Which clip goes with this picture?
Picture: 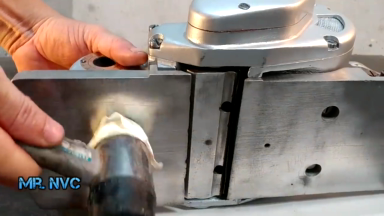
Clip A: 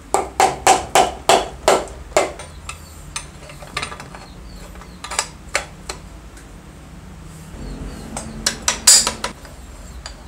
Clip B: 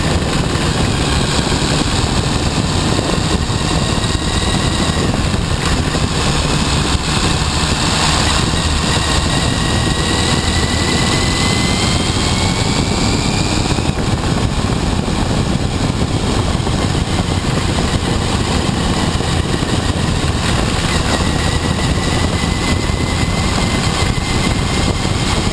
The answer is A